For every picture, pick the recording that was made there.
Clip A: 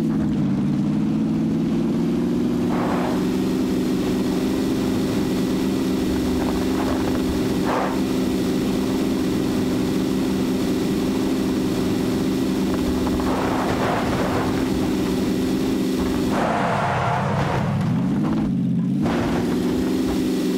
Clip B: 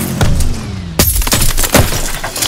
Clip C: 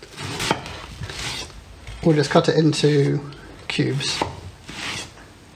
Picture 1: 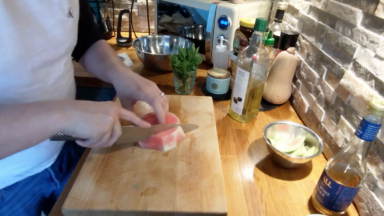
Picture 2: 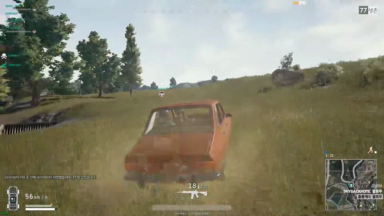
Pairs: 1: C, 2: A